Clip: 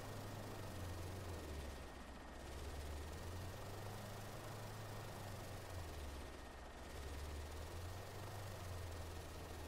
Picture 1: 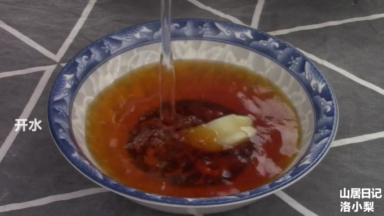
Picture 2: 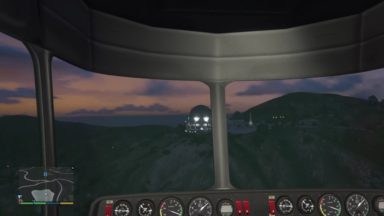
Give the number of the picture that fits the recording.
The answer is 2